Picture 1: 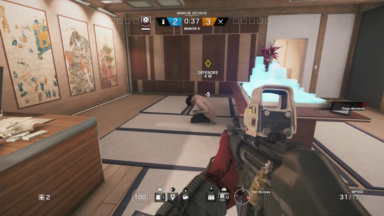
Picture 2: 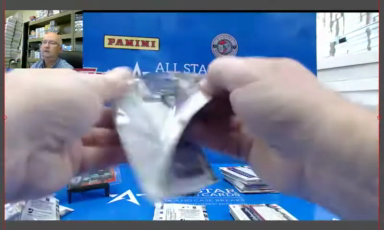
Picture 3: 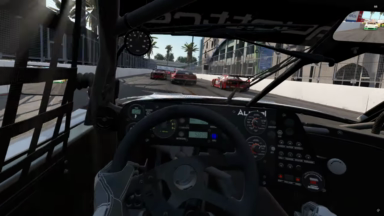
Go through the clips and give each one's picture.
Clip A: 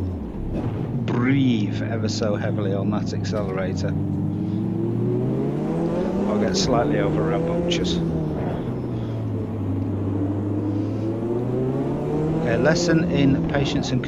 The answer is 3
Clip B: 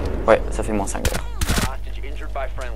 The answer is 1